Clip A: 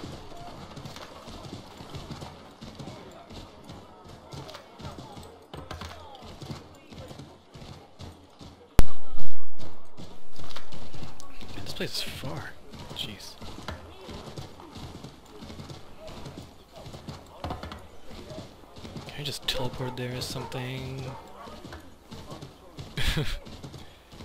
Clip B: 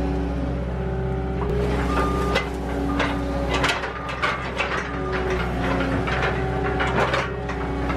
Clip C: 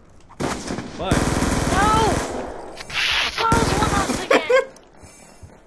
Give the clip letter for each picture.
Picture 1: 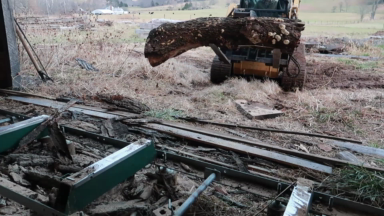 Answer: B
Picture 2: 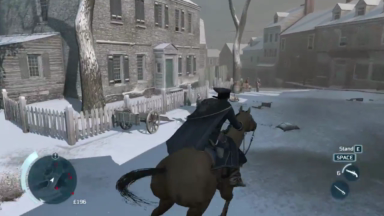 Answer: A